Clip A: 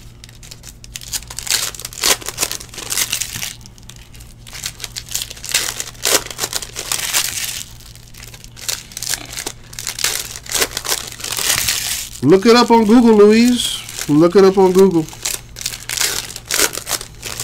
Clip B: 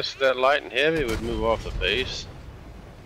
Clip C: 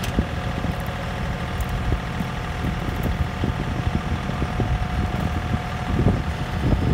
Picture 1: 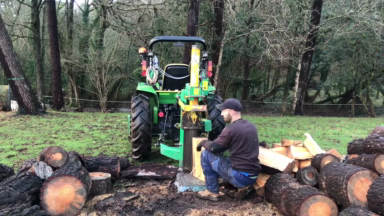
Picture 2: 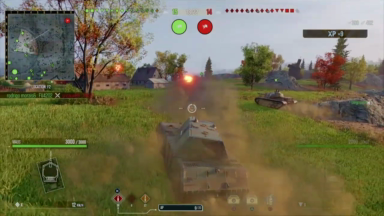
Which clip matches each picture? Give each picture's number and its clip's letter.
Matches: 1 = C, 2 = B